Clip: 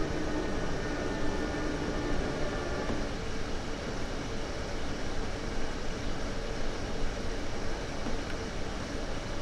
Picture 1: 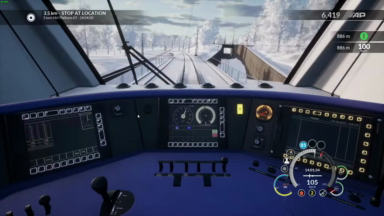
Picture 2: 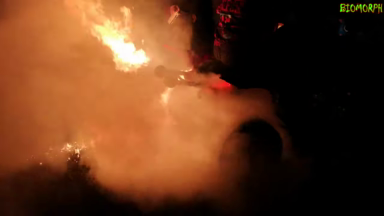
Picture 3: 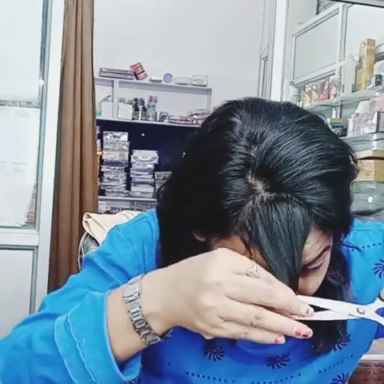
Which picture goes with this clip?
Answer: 1